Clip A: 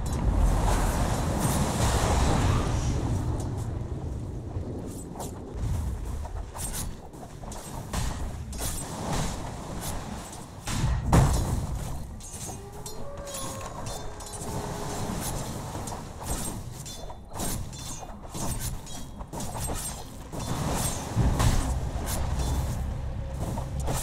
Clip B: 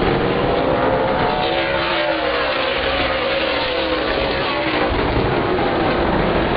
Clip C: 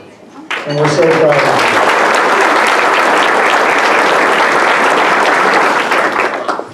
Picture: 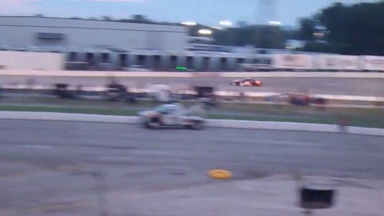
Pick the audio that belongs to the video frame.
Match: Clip B